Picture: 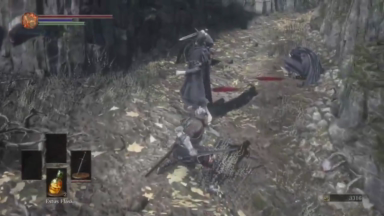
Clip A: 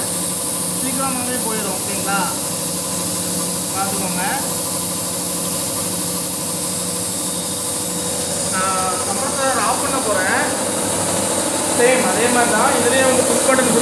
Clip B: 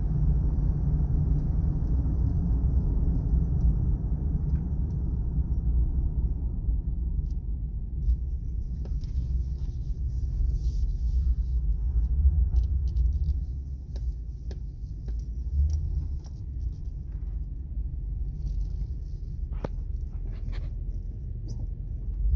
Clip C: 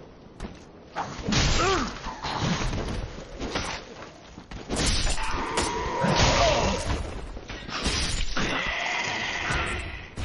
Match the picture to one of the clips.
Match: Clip C